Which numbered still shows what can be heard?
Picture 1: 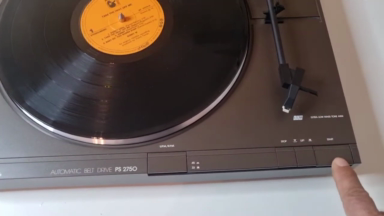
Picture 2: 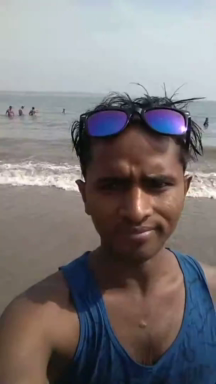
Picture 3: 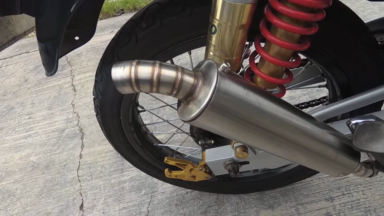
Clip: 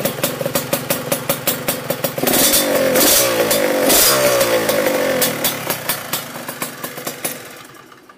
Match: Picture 3